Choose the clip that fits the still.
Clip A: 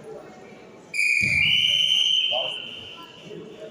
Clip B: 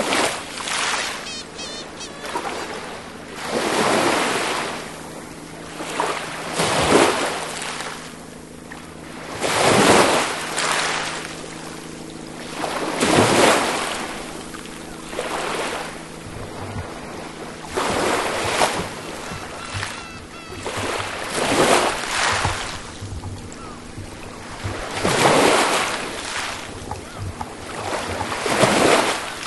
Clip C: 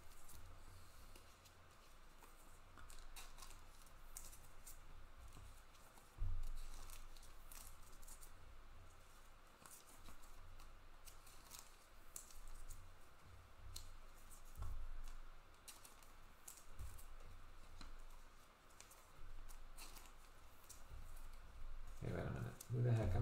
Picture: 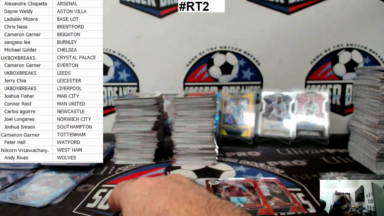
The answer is C